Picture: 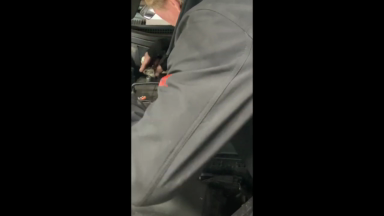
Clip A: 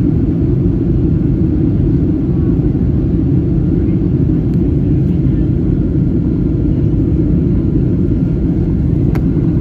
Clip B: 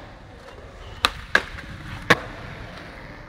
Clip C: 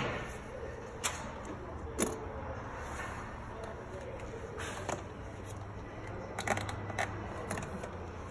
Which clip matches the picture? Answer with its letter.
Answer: C